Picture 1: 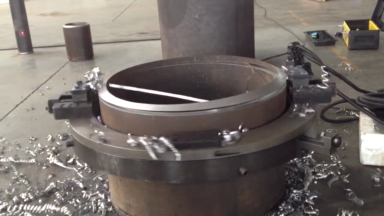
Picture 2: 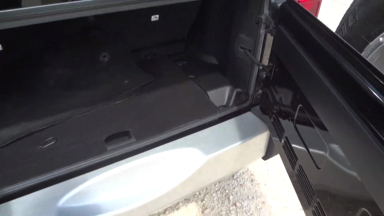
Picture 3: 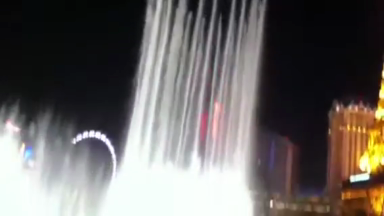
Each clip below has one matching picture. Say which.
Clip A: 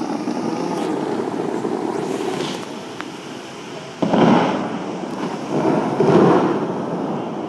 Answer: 3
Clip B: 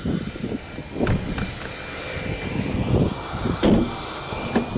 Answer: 2